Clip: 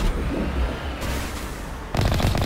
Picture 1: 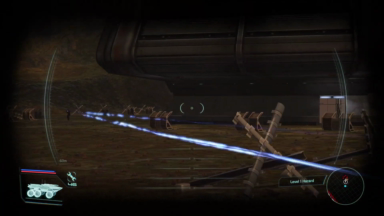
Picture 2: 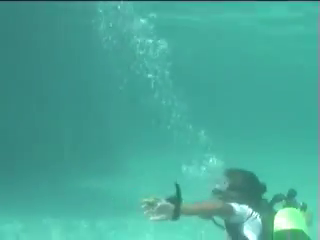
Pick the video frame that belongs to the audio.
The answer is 1